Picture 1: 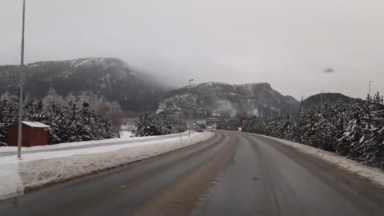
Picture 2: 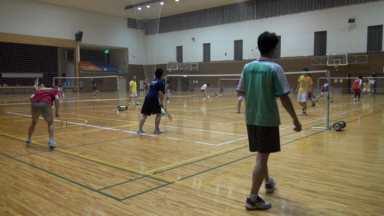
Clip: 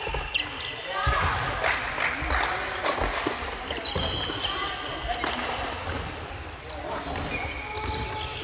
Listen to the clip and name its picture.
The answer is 2